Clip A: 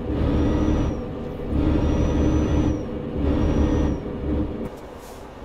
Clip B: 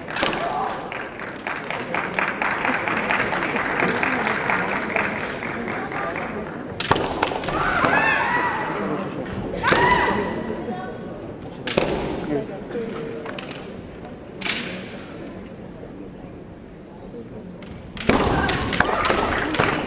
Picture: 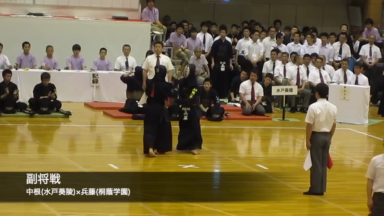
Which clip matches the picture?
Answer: B